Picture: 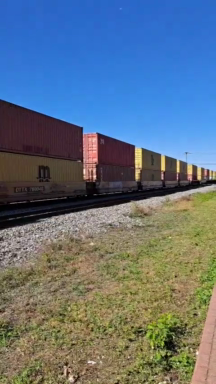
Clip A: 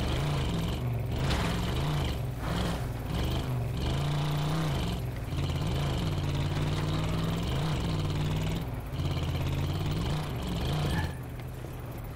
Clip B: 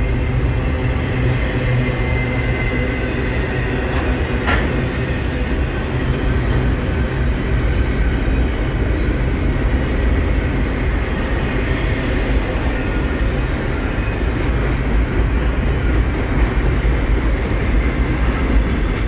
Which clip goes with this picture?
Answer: B